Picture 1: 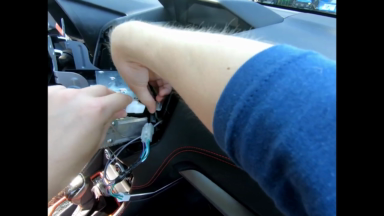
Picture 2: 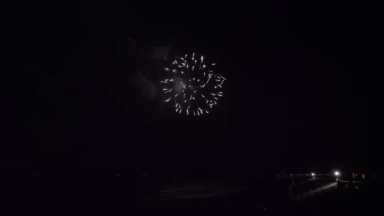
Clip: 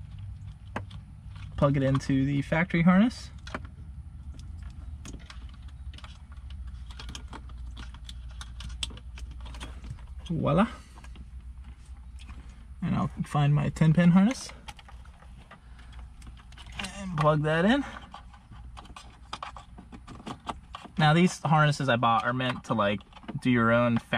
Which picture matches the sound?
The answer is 1